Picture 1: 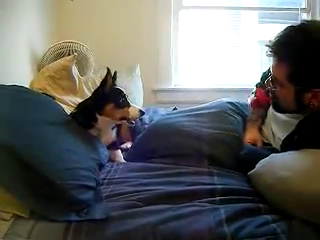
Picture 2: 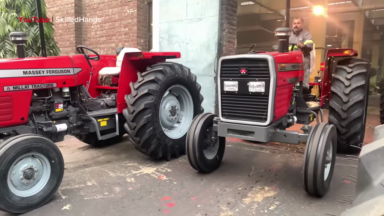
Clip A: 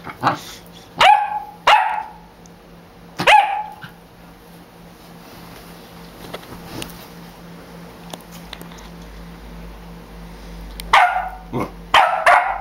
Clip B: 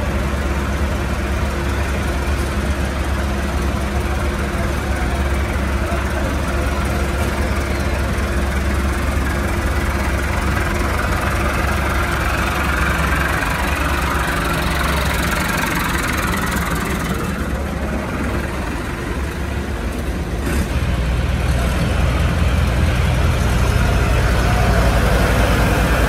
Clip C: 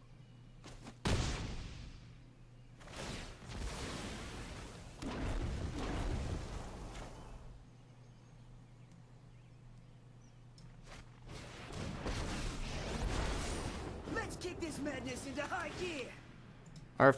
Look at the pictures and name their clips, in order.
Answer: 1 A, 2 B